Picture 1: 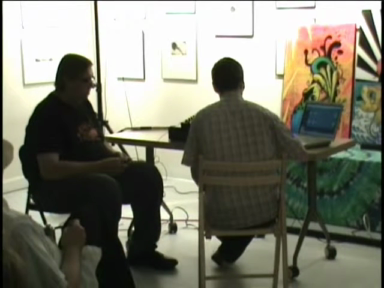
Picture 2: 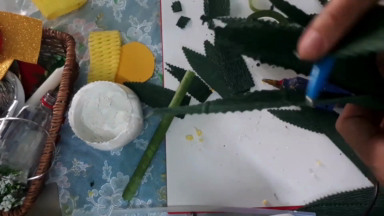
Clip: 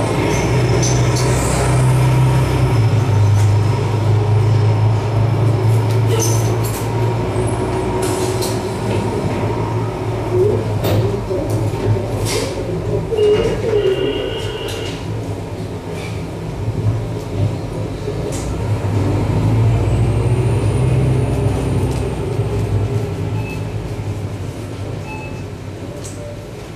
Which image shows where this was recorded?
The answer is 1